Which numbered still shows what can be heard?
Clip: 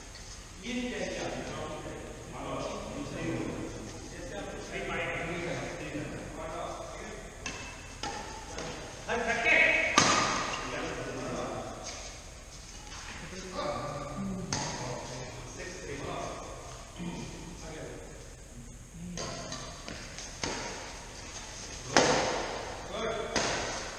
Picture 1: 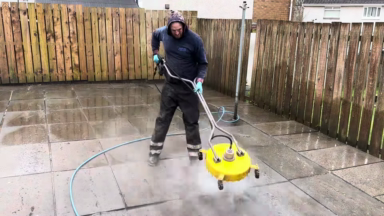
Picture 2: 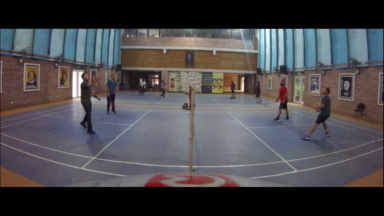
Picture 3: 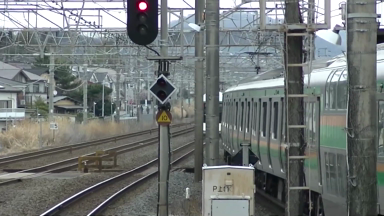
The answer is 2